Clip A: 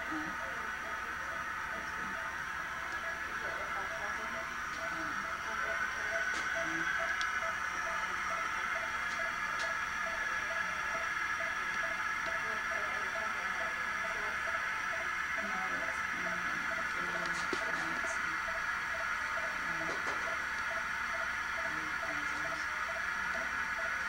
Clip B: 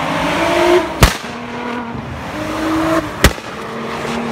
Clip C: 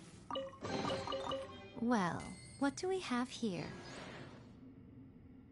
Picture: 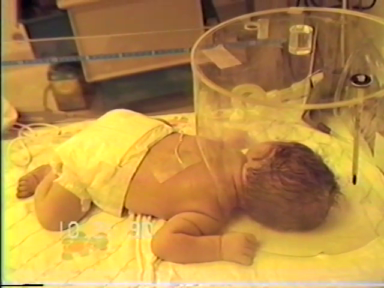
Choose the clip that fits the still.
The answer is A